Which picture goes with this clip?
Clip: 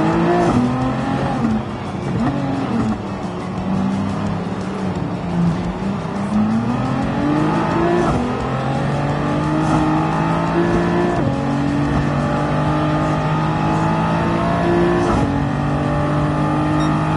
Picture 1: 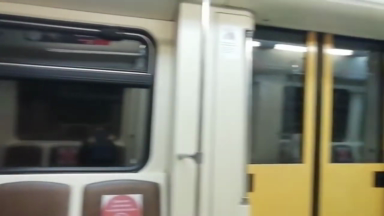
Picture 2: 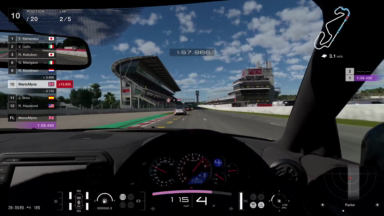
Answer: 2